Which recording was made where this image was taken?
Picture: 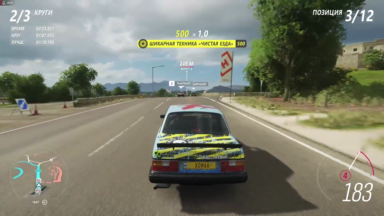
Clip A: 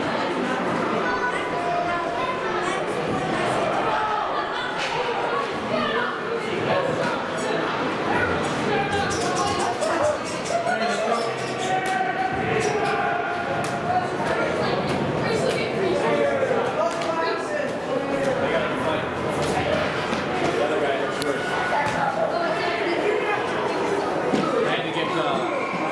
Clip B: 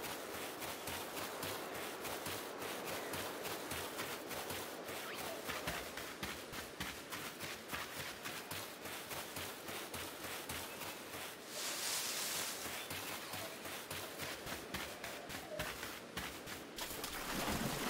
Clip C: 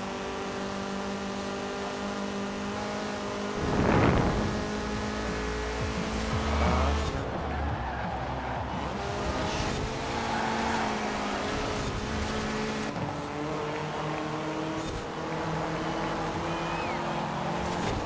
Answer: C